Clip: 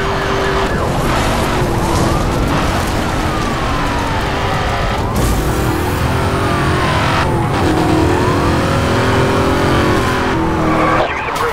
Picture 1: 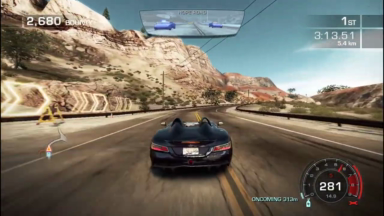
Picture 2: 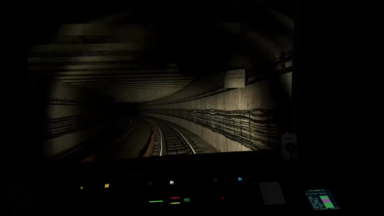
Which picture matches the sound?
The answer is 1